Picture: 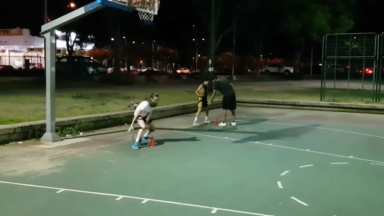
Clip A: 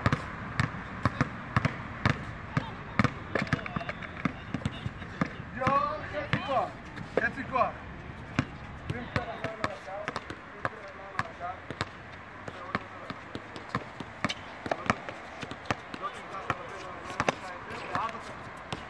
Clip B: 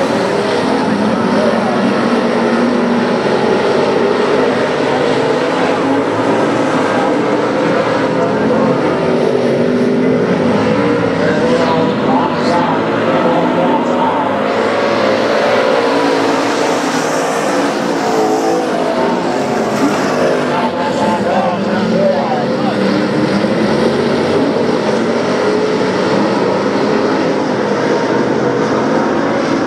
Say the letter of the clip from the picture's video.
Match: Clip A